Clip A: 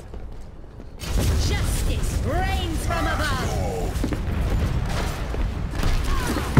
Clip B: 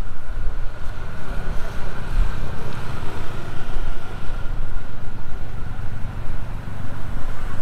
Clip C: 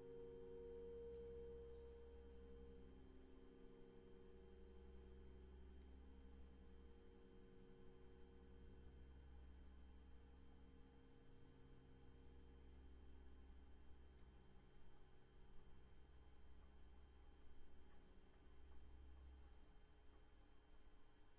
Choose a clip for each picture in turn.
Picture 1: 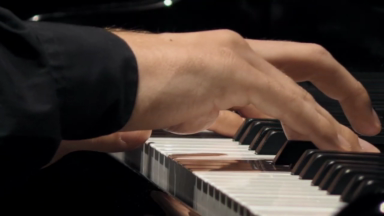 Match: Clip C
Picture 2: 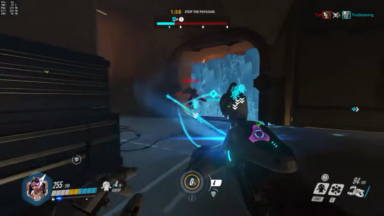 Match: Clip A